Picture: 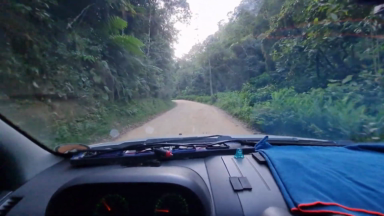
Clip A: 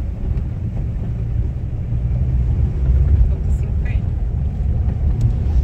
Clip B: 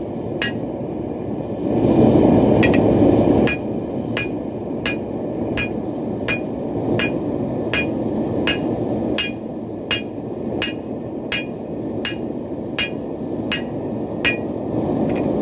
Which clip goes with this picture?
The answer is A